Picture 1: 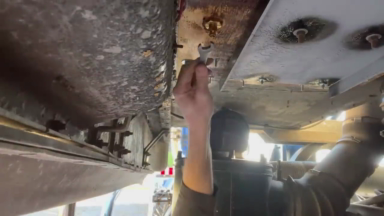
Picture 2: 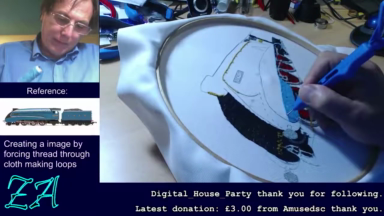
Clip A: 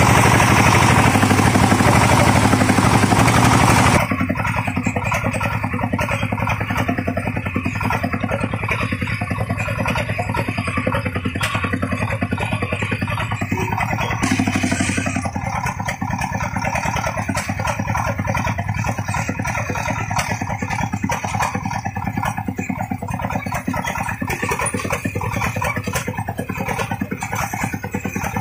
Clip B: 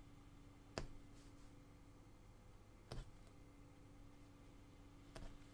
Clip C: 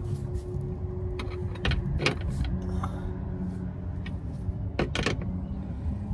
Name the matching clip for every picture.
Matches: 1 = C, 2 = B